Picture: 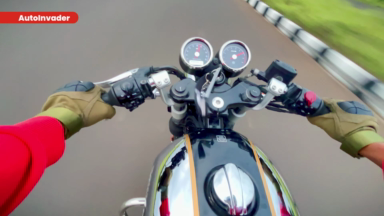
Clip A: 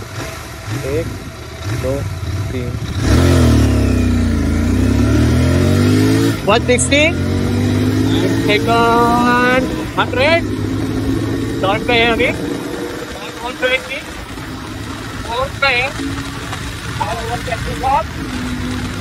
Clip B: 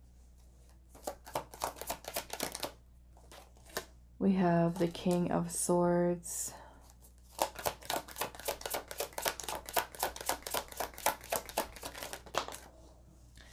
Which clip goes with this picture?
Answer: A